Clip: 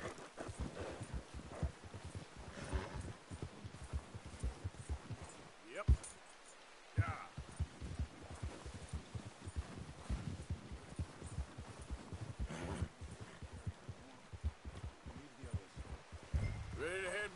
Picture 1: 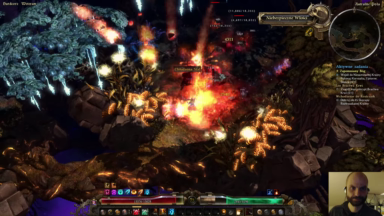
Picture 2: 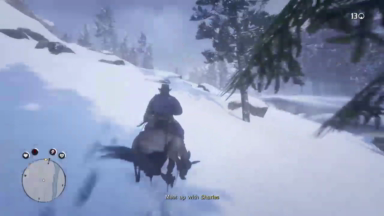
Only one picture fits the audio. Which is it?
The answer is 2